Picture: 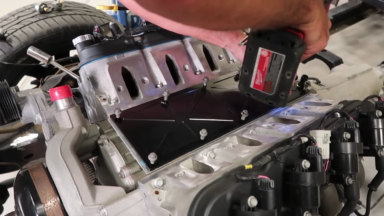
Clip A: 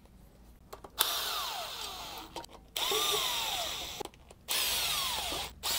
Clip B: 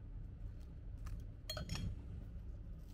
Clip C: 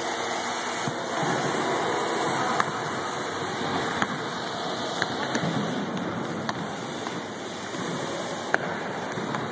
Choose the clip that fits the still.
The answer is A